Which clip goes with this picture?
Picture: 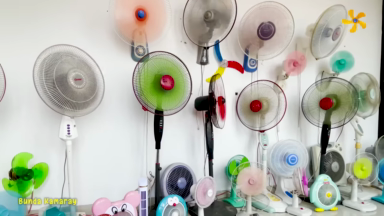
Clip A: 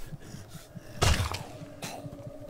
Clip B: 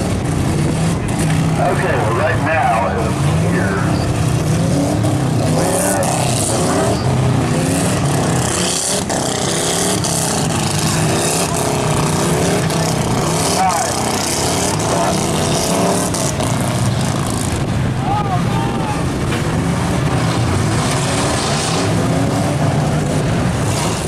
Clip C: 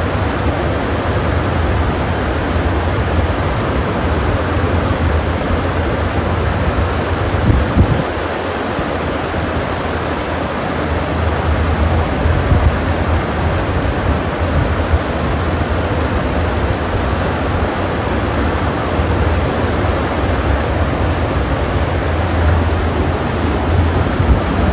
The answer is C